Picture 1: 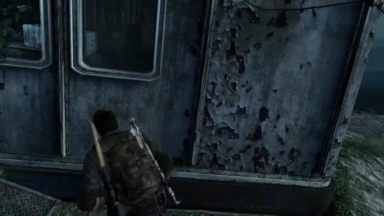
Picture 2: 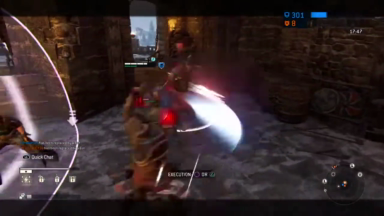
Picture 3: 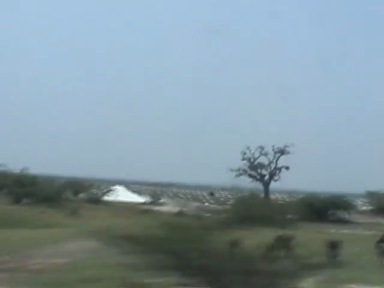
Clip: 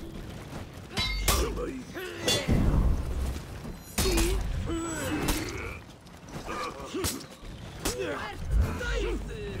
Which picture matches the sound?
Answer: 2